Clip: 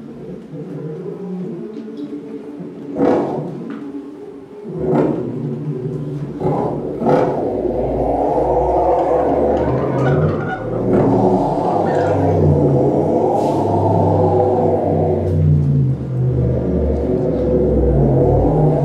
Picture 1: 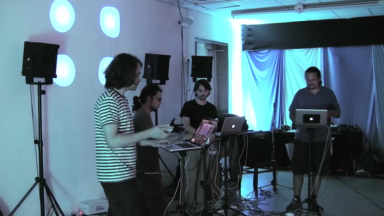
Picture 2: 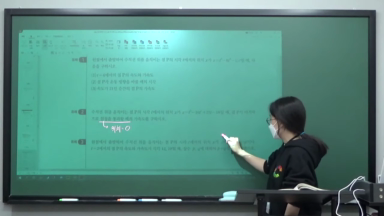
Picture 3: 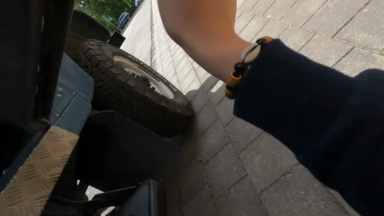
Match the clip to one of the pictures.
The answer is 1